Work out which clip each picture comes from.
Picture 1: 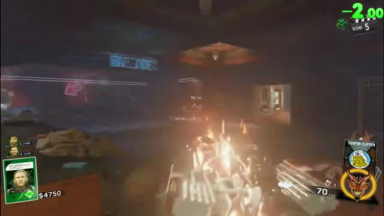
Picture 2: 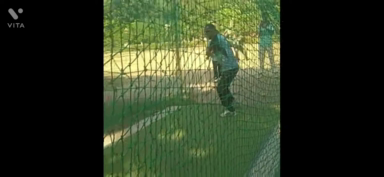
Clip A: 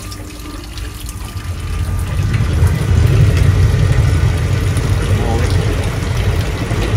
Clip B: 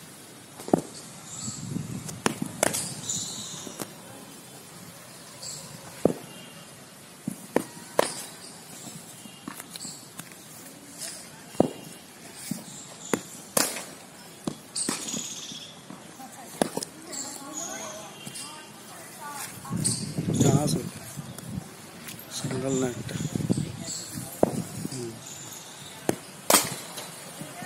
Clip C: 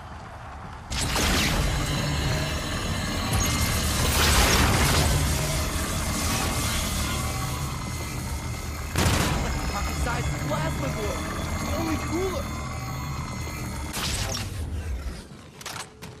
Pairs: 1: C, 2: B